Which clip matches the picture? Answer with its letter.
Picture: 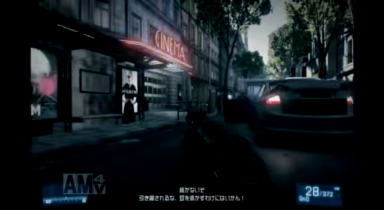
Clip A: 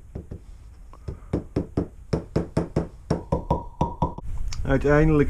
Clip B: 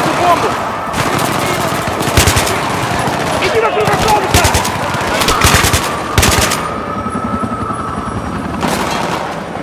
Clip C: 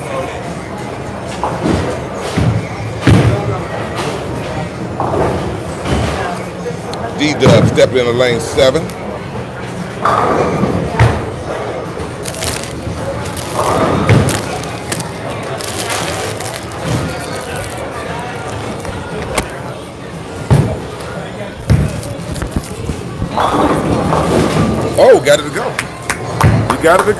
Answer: B